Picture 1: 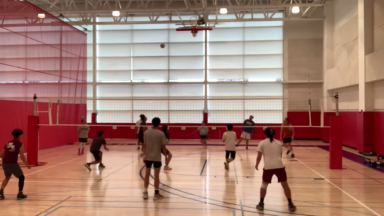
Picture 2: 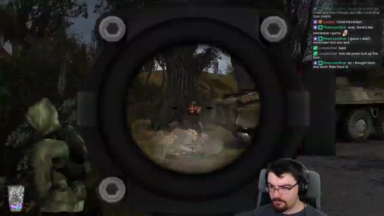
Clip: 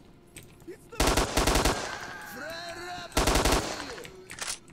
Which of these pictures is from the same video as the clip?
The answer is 2